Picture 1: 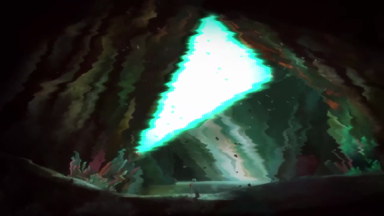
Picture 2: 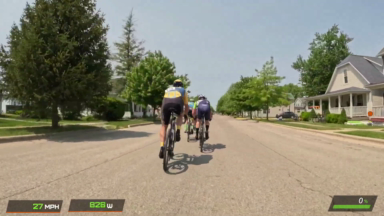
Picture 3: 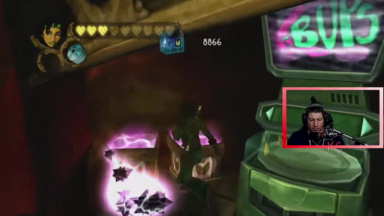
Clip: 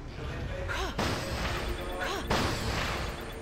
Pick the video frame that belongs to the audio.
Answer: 3